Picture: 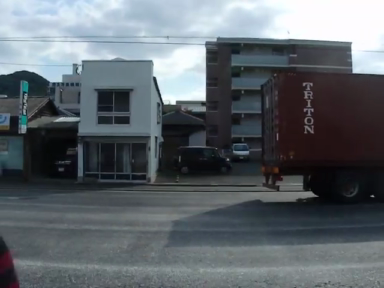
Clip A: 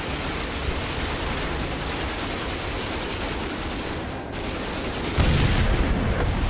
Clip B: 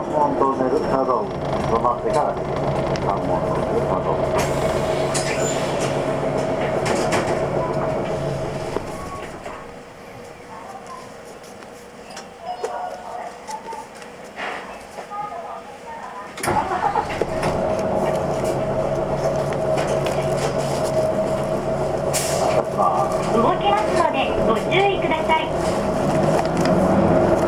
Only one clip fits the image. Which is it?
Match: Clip B